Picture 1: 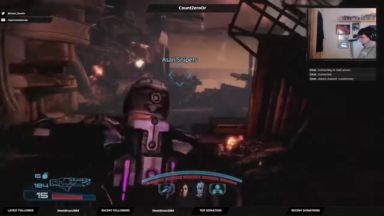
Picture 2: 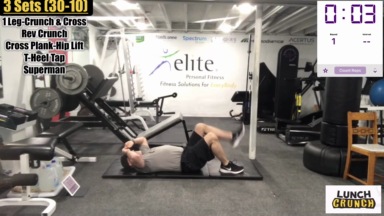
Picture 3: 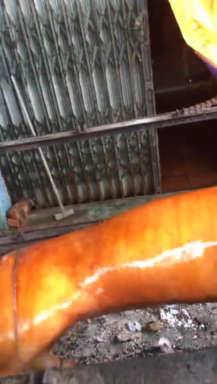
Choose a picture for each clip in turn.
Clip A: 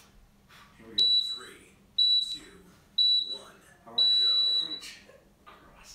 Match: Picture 2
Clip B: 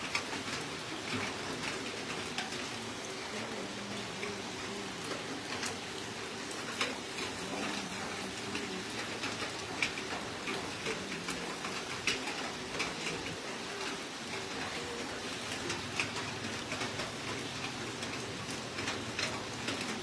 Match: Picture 3